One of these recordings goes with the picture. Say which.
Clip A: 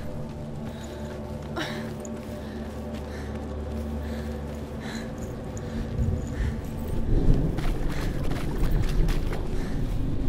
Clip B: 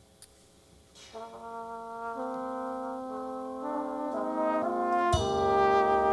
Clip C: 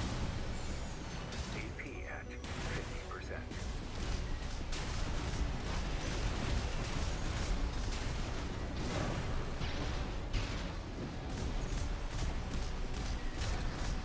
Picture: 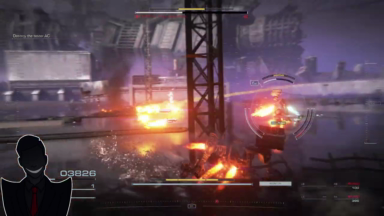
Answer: C